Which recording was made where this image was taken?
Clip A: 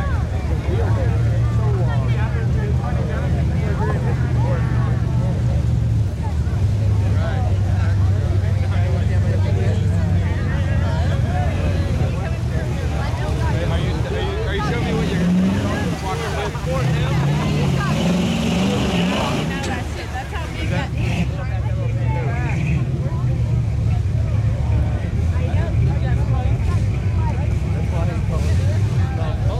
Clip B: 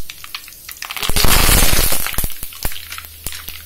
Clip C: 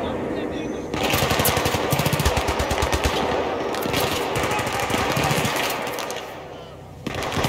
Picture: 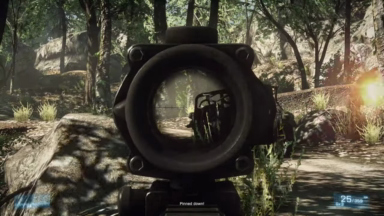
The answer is C